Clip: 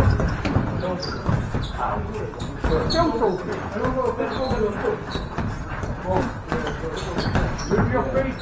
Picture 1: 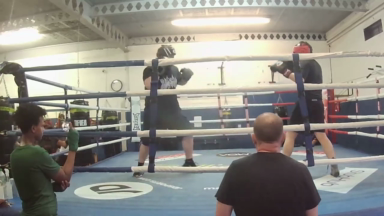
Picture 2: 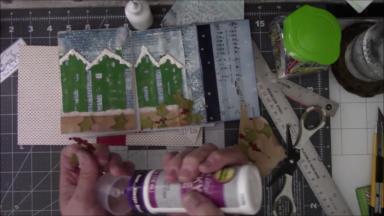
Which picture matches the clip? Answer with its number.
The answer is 1